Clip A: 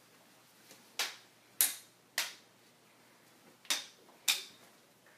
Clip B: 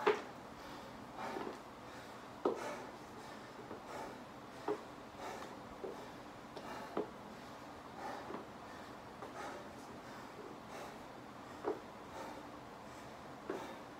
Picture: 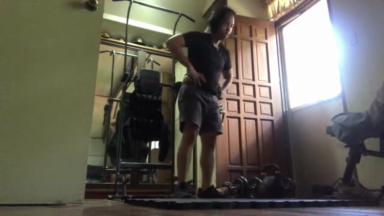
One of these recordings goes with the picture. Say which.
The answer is B